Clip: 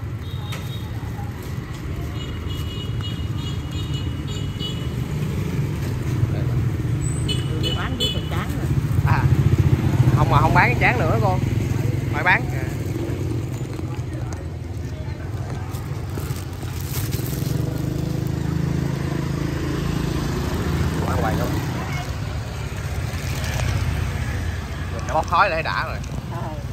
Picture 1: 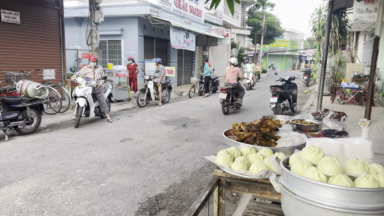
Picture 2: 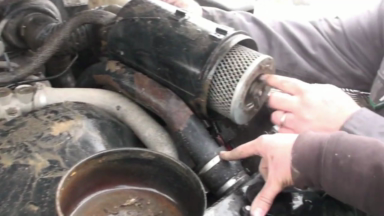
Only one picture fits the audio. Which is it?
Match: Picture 1